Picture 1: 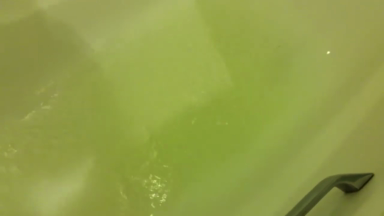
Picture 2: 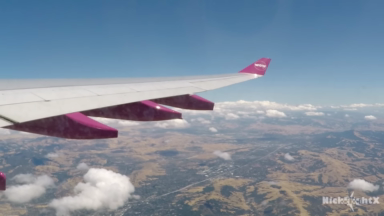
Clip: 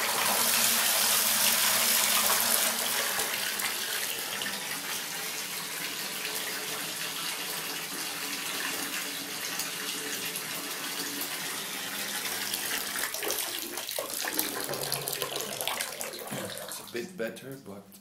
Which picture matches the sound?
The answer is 1